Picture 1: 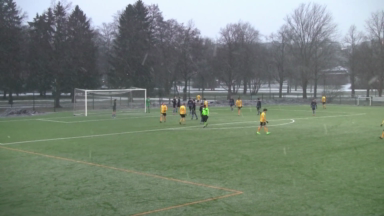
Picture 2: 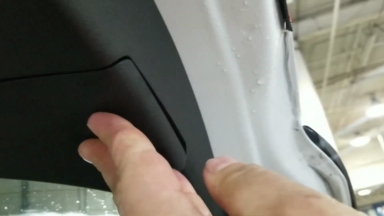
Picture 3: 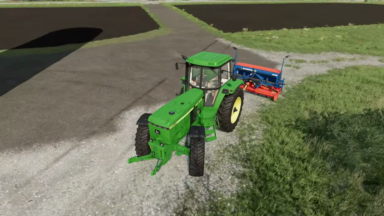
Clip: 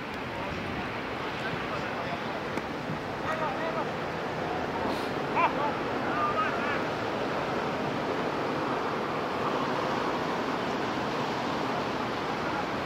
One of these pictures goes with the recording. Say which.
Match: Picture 1